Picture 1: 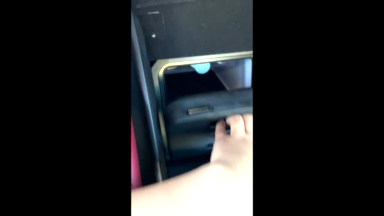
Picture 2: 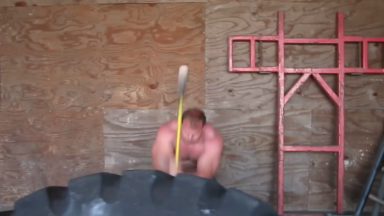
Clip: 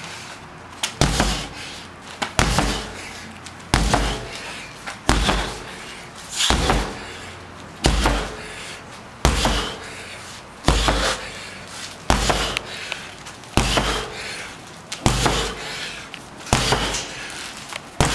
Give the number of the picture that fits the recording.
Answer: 2